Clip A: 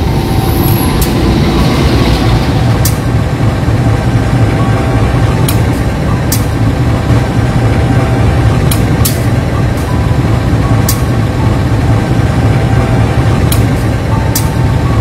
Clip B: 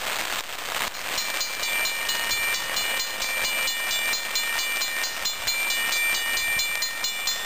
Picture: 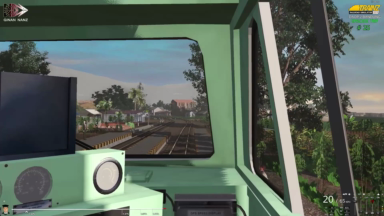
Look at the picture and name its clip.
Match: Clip A